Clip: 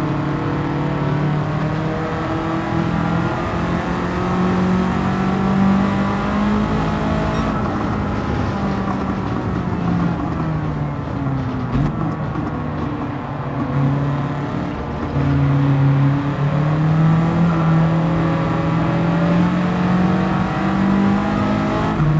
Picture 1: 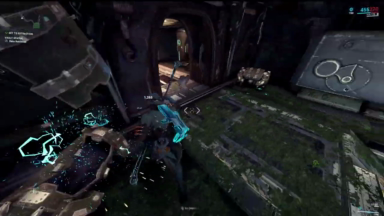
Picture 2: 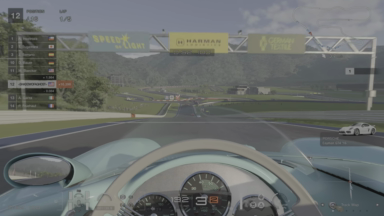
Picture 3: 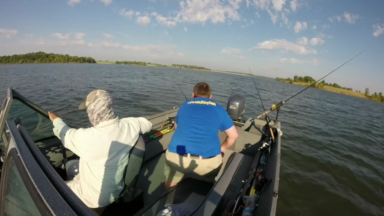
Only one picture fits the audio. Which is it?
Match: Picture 2